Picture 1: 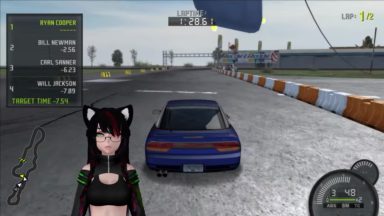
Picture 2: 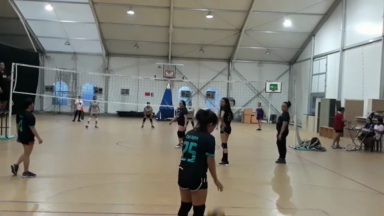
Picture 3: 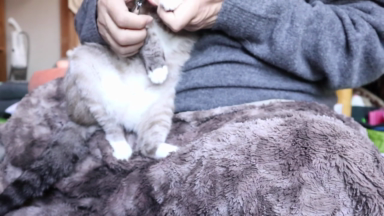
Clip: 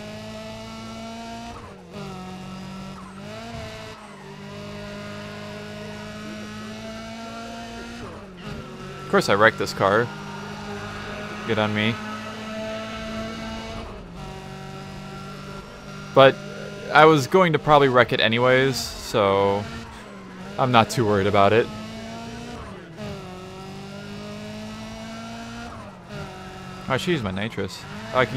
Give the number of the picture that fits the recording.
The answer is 1